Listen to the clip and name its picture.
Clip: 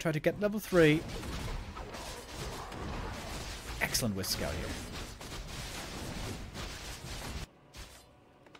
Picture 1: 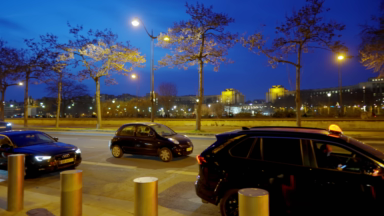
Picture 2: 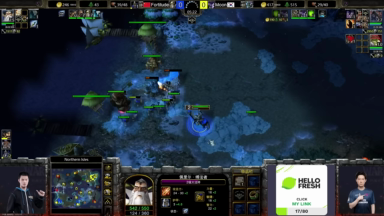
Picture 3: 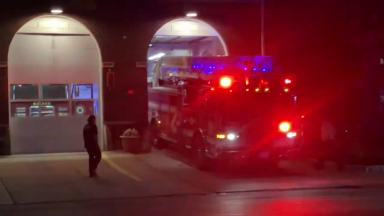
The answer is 2